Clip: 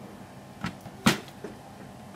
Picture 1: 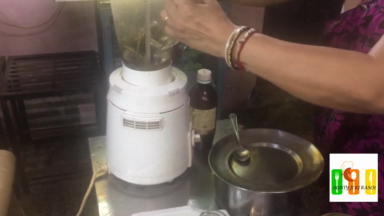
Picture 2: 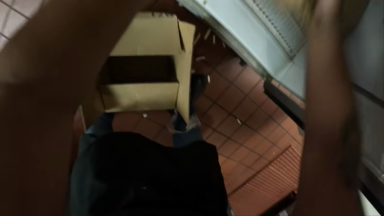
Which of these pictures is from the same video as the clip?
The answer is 1